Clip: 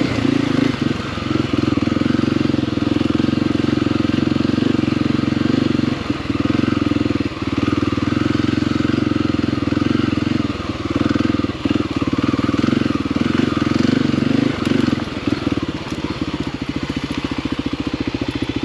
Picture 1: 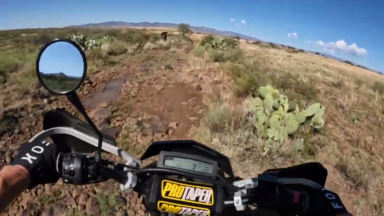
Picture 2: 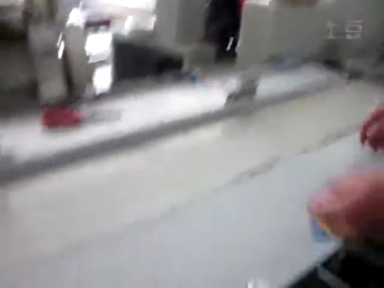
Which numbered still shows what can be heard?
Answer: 1